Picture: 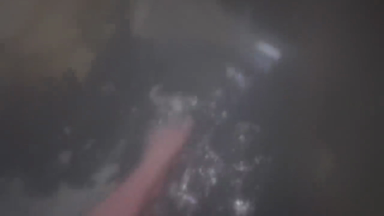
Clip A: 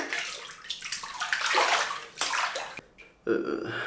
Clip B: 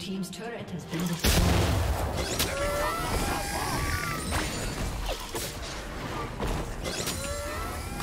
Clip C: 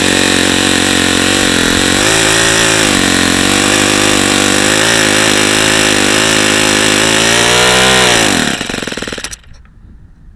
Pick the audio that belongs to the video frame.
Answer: A